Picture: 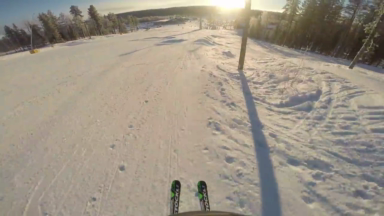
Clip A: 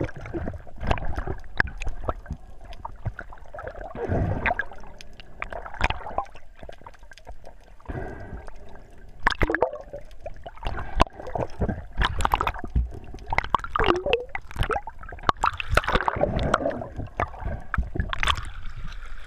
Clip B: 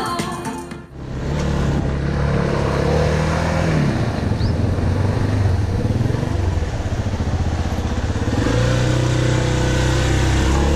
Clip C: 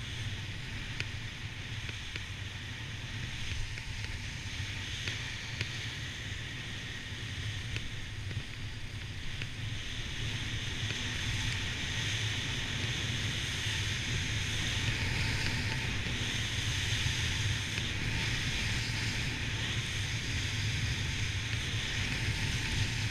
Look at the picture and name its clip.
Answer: C